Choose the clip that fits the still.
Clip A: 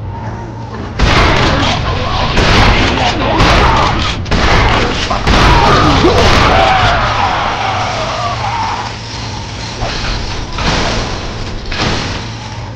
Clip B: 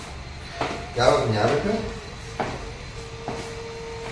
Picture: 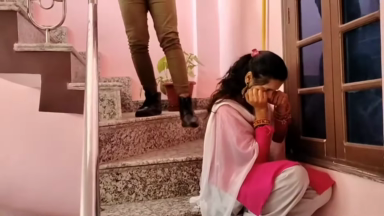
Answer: B